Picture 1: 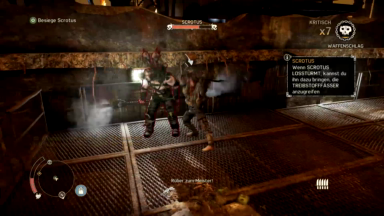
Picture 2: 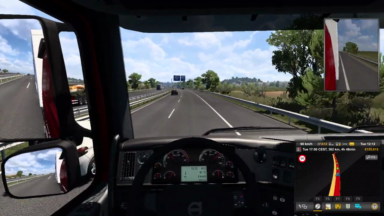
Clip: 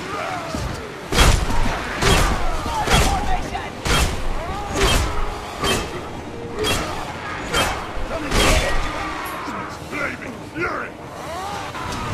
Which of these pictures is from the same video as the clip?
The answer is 1